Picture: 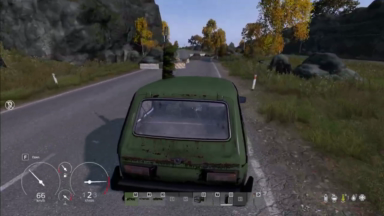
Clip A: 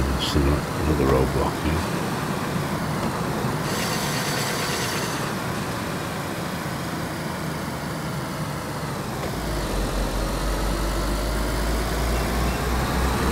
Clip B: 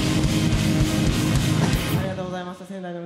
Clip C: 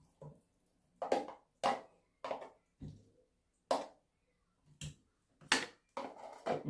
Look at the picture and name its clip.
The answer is A